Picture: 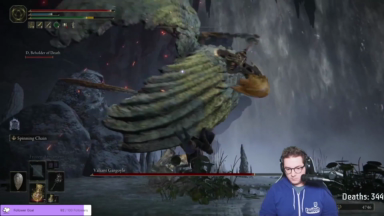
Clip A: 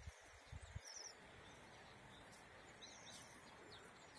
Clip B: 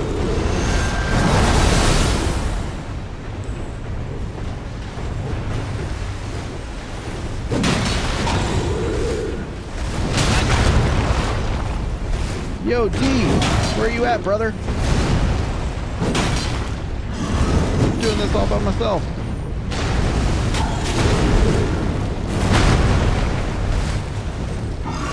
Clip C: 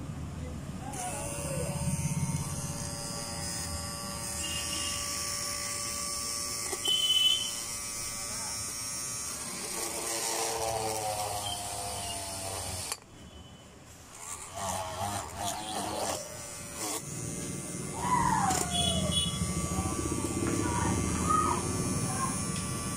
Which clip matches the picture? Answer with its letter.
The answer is B